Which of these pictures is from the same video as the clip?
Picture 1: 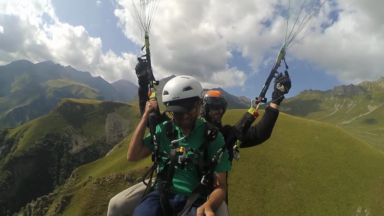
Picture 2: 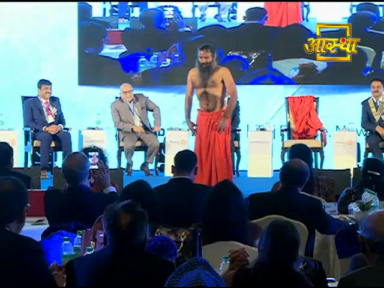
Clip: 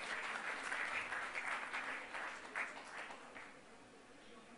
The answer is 2